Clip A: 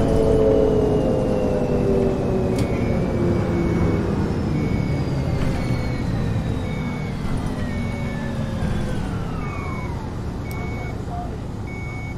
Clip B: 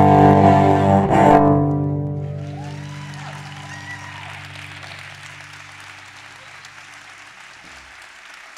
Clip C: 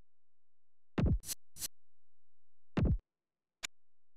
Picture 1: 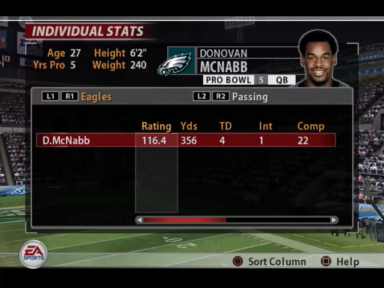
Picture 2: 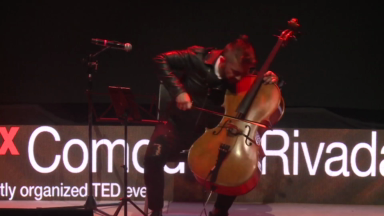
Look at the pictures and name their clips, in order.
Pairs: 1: C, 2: B